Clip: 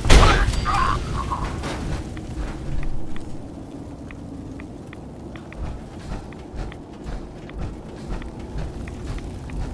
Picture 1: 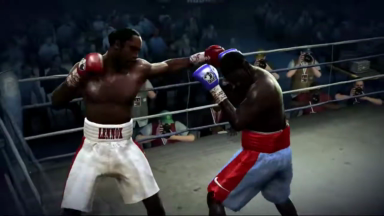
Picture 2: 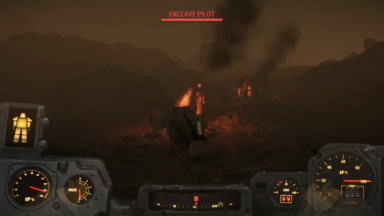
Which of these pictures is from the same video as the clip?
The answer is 2